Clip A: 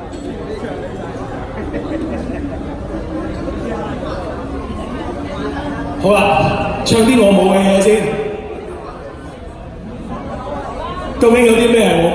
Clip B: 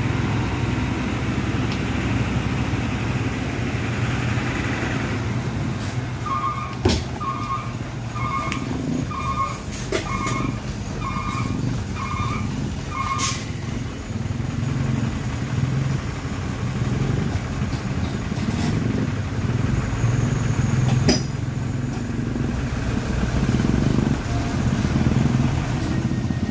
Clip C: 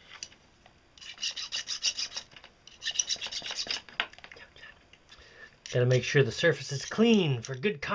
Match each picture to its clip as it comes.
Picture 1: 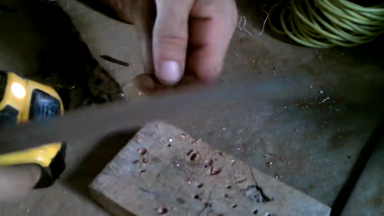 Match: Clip C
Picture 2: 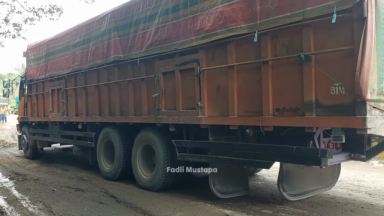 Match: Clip B